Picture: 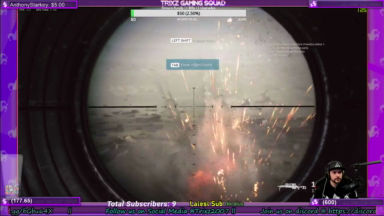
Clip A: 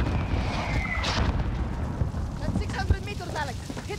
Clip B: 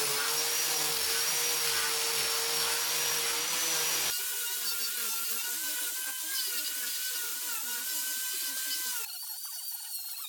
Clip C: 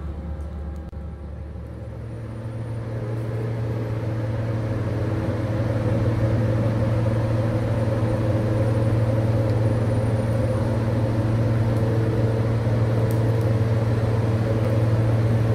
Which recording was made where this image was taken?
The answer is A